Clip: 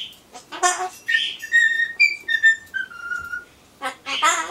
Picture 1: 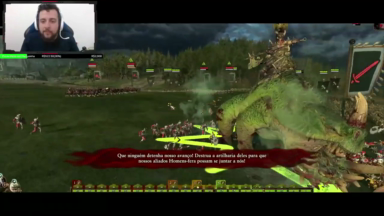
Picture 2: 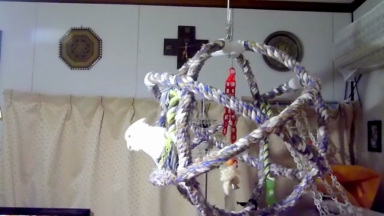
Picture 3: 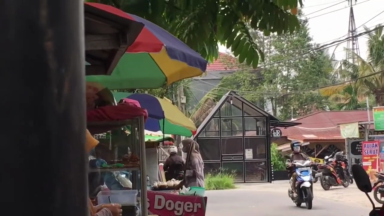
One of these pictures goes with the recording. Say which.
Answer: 2